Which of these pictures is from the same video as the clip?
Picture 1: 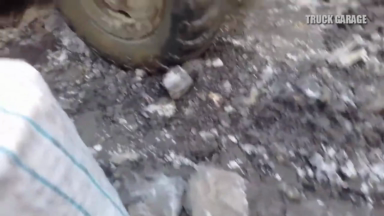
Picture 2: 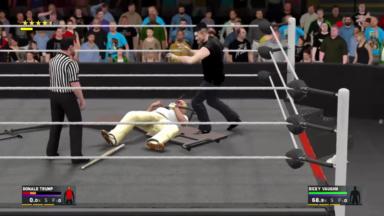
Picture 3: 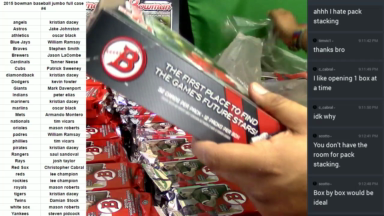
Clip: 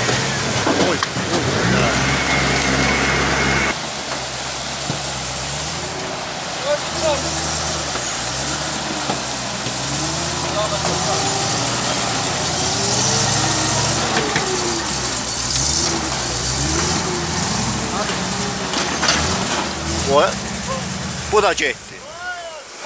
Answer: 1